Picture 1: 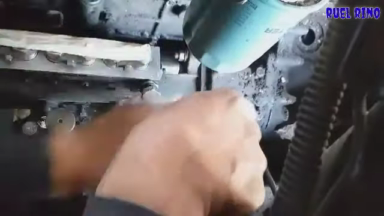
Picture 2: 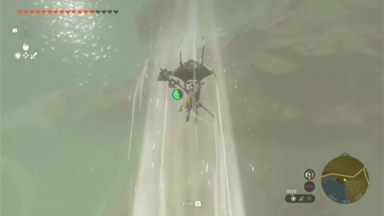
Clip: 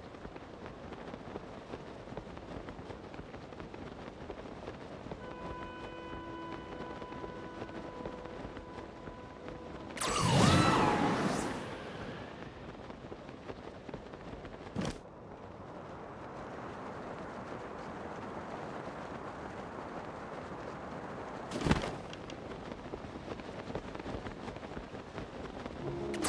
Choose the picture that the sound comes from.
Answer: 2